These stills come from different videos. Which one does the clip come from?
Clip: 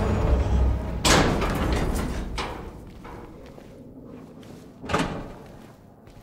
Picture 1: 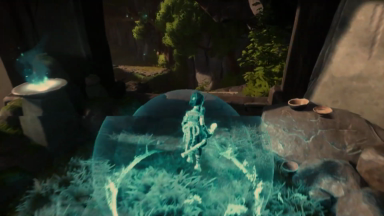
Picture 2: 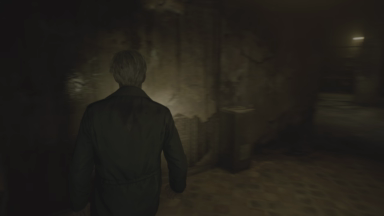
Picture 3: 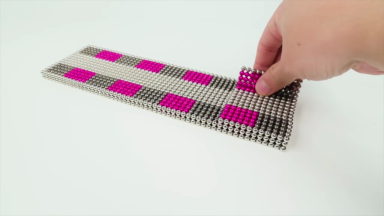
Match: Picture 2